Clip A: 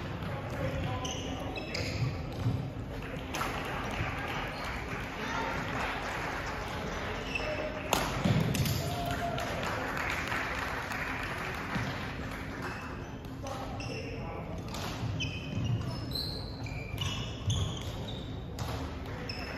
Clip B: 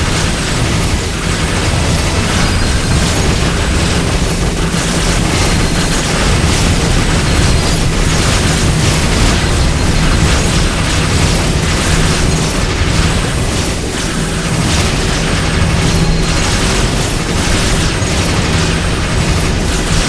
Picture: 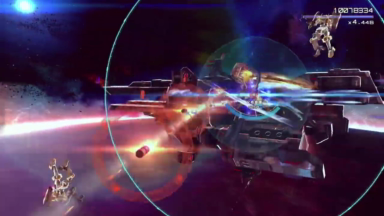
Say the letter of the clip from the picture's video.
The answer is B